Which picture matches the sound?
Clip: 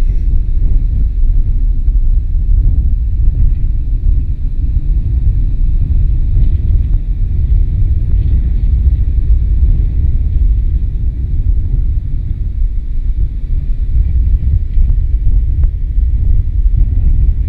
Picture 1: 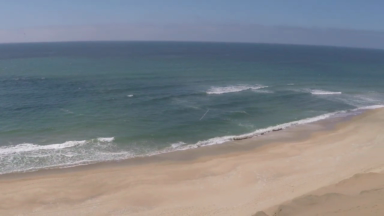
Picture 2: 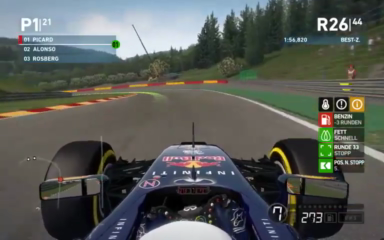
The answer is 1